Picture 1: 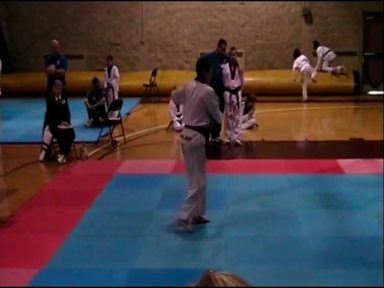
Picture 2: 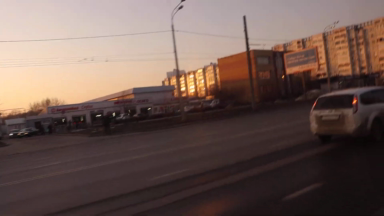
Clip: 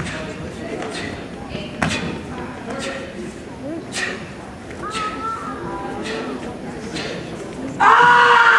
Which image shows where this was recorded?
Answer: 1